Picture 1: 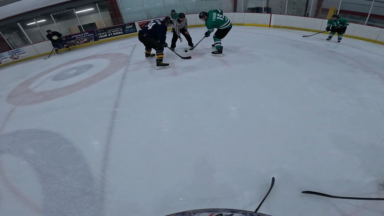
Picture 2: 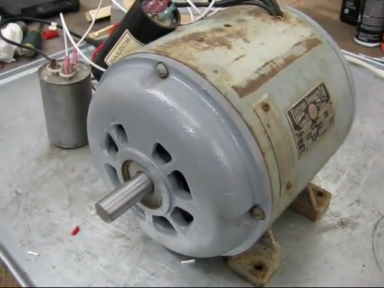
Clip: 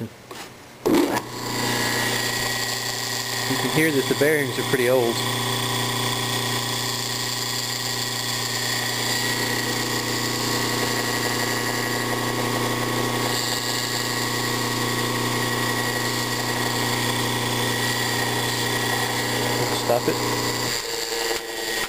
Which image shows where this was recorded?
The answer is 2